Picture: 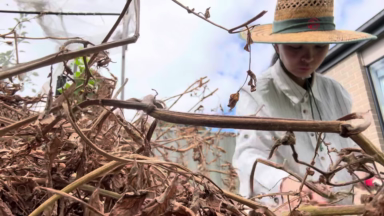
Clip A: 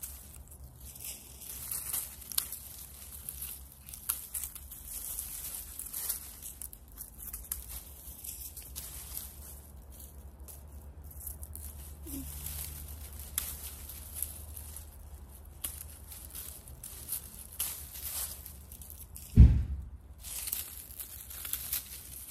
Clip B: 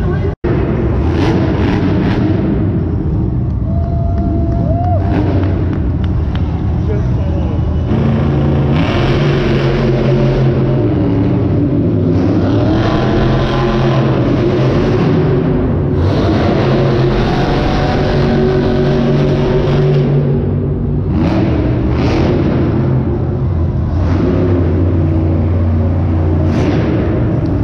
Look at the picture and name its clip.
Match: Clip A